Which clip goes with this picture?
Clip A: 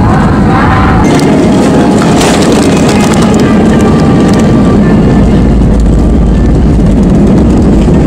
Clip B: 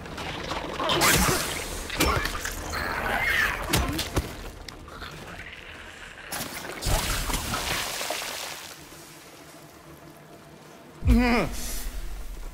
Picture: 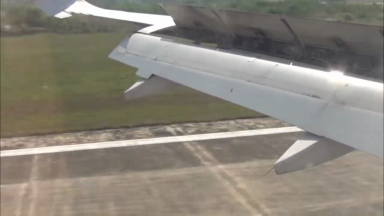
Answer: A